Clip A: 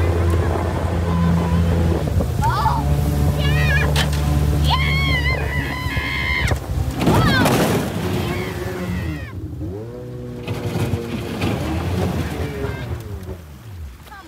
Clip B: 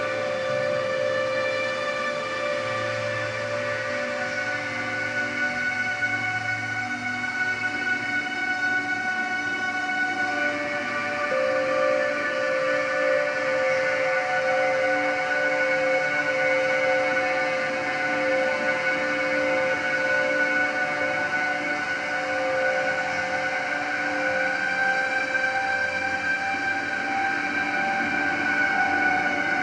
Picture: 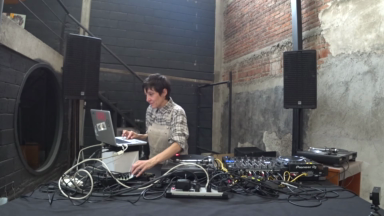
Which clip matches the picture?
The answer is B